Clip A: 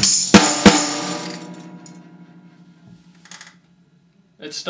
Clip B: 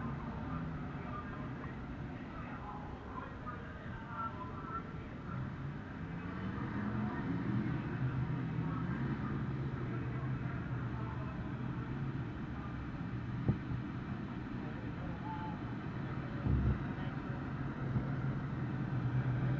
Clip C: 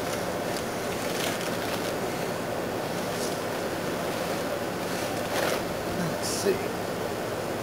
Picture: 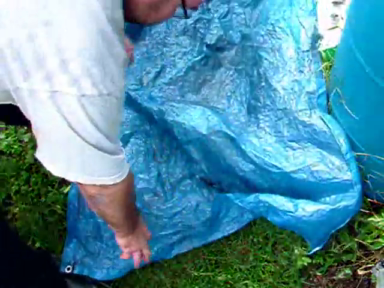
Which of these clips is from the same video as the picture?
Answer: C